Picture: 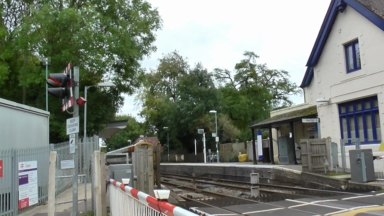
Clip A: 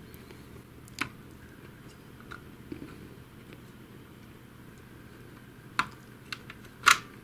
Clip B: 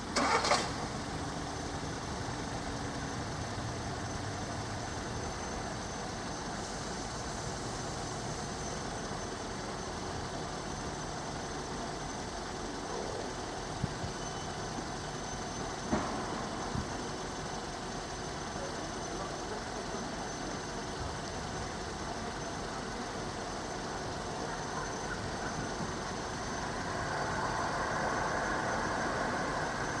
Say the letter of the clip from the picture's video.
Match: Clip B